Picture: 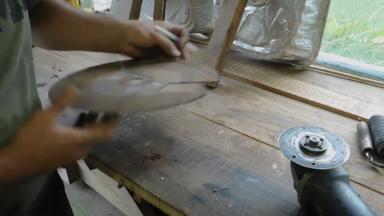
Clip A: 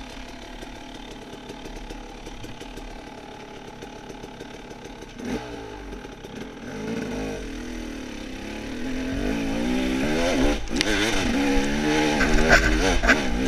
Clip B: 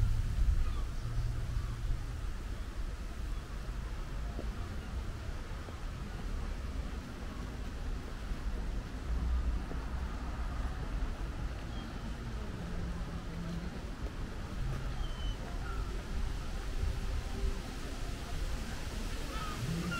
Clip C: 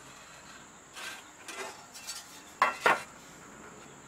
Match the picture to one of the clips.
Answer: C